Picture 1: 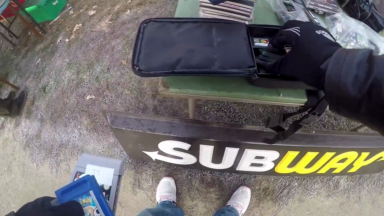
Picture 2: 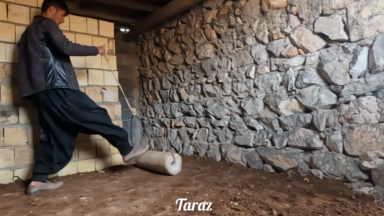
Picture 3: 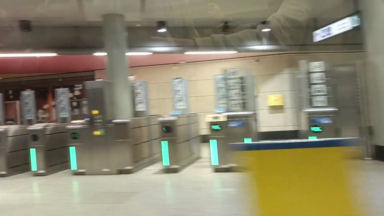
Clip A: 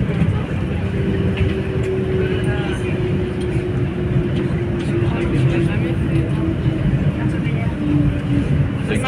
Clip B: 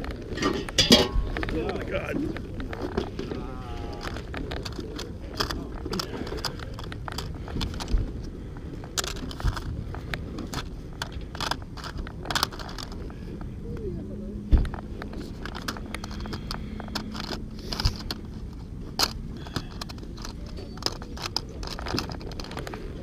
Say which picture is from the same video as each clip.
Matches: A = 3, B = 1